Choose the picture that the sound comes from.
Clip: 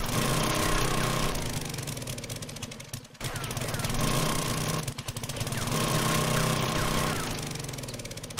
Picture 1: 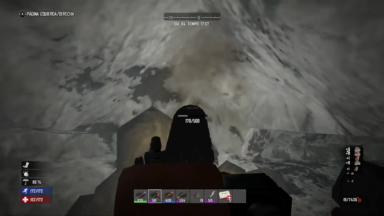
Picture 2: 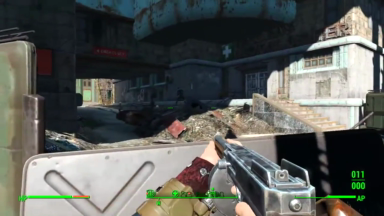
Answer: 1